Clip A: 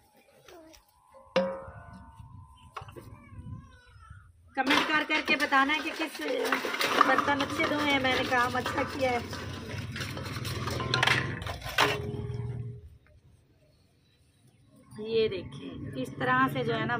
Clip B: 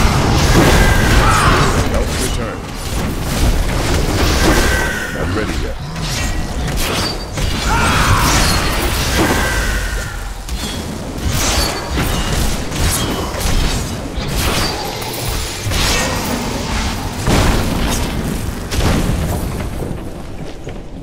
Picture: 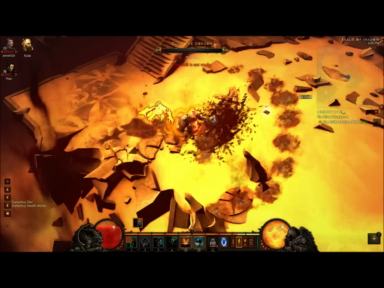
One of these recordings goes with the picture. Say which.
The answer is B